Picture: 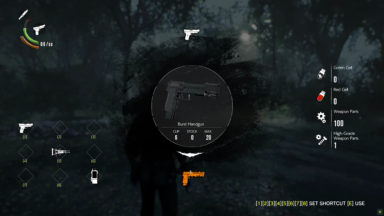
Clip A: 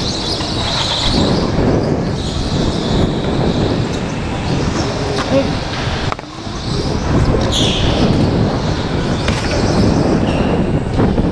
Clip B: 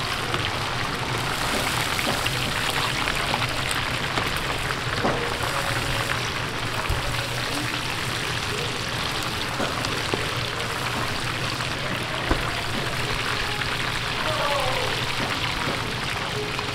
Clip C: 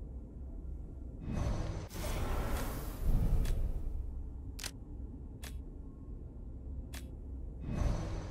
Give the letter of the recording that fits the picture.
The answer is C